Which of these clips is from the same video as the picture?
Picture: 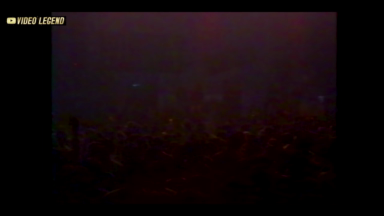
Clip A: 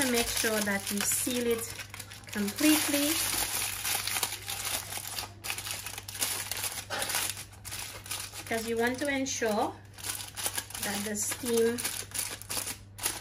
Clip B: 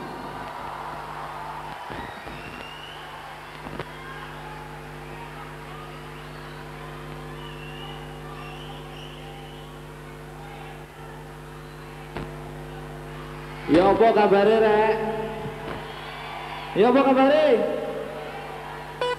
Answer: B